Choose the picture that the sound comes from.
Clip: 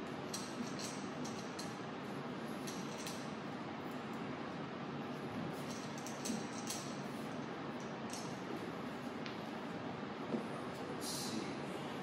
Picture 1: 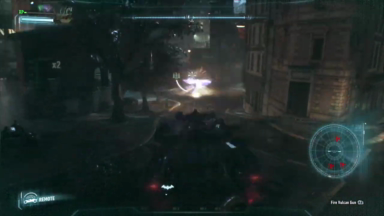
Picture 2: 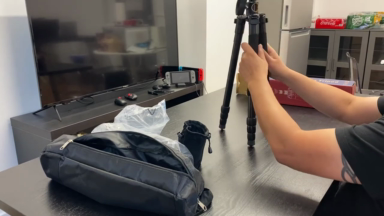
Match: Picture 2